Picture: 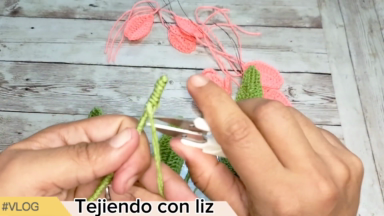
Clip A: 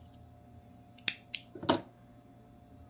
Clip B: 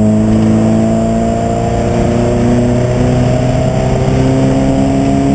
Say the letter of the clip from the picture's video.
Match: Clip A